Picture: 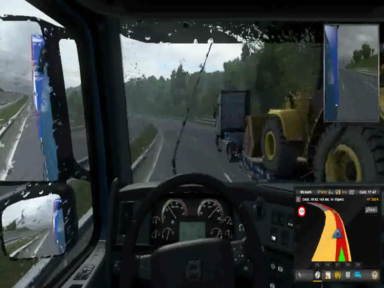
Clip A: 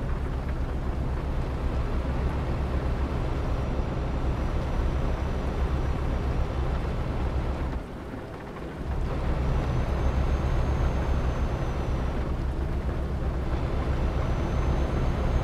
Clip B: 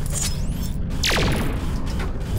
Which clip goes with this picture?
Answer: A